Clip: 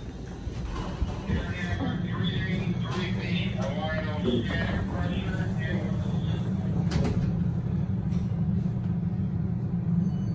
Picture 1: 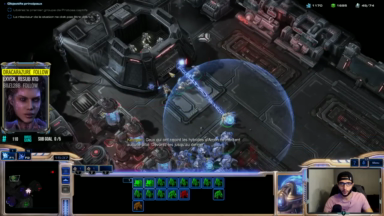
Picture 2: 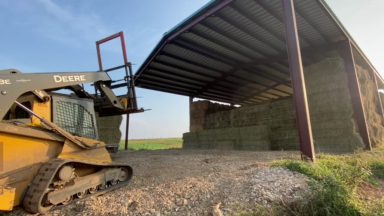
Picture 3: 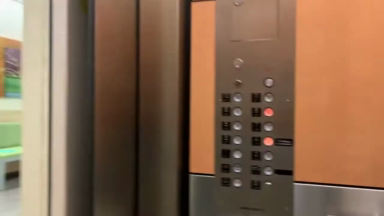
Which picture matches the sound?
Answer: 3